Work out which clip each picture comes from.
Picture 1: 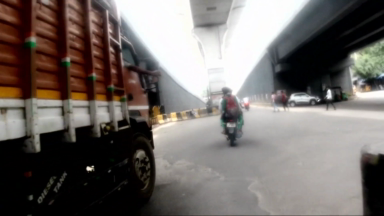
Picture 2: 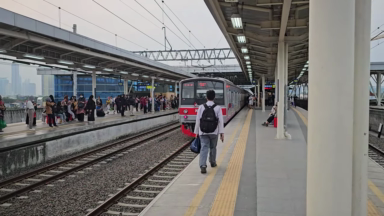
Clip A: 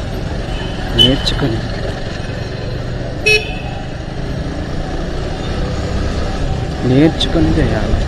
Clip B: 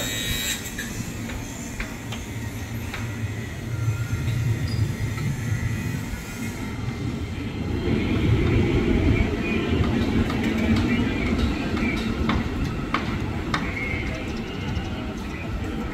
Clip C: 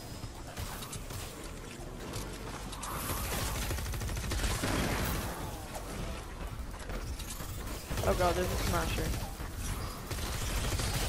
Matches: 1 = A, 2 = B